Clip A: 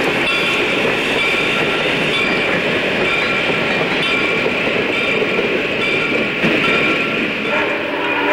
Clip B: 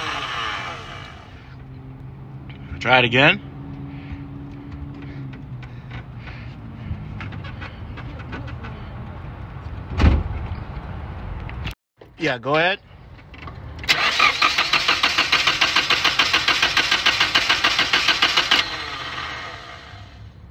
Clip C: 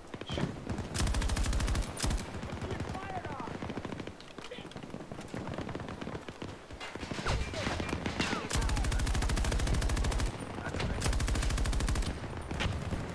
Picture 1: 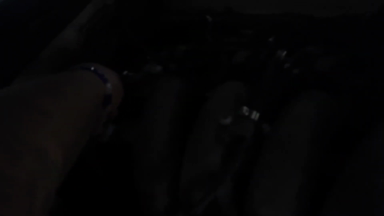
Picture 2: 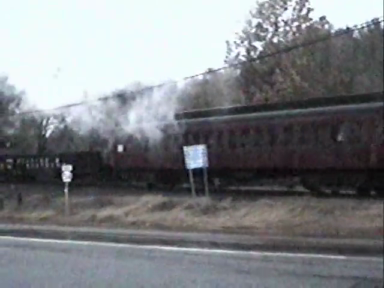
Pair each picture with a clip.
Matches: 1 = B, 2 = A